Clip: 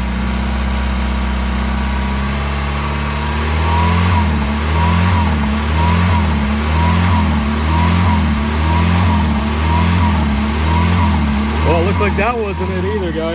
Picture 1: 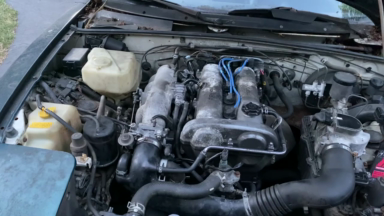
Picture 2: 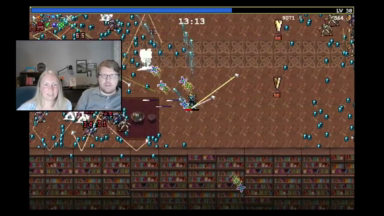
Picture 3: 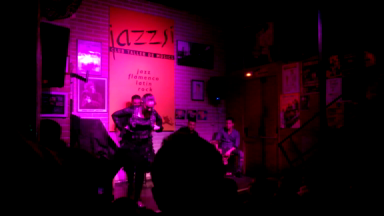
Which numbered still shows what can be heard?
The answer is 1